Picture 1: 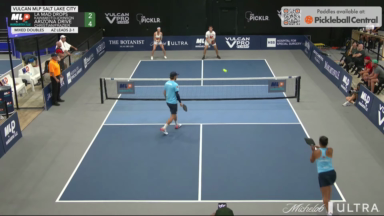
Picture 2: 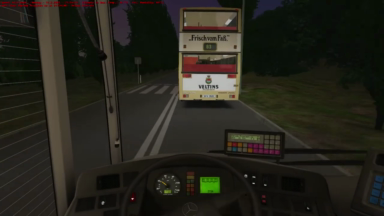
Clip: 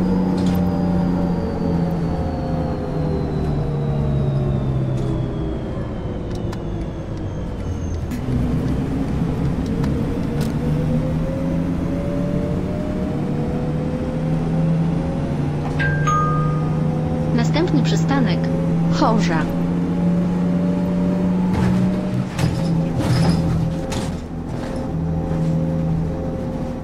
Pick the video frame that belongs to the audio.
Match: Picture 2